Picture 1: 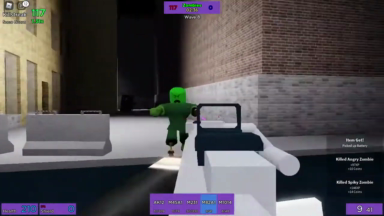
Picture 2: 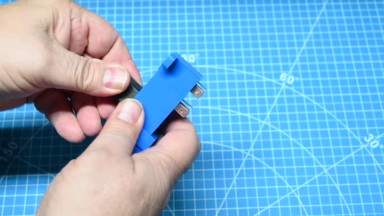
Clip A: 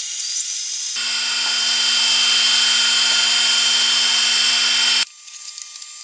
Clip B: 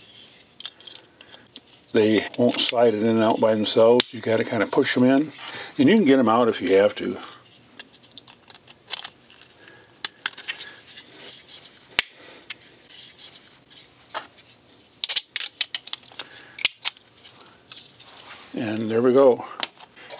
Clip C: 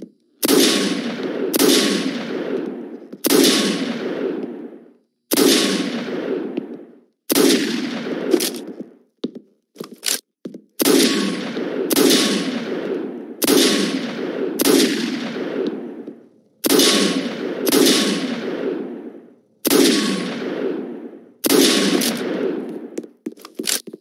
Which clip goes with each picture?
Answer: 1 C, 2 B